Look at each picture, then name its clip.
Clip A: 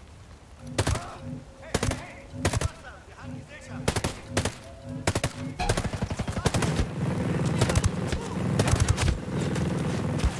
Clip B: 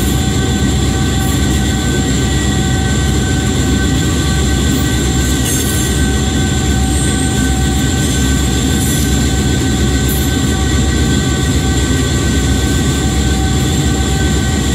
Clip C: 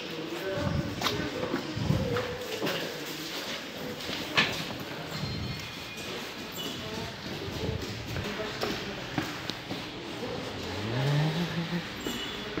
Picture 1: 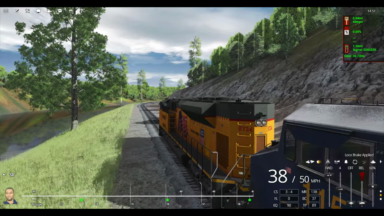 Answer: B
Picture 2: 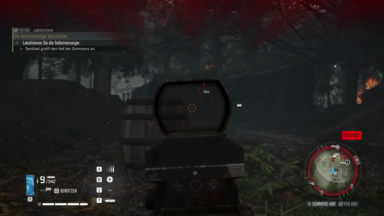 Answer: A